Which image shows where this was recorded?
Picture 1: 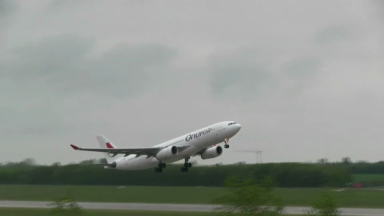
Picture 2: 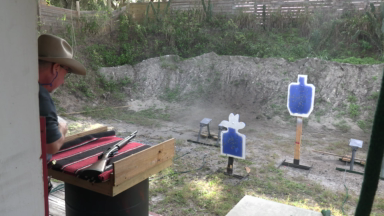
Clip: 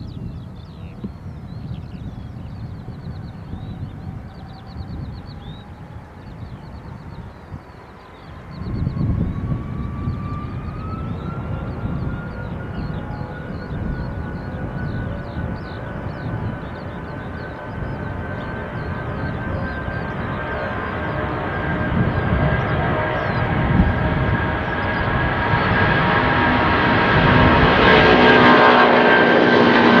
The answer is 1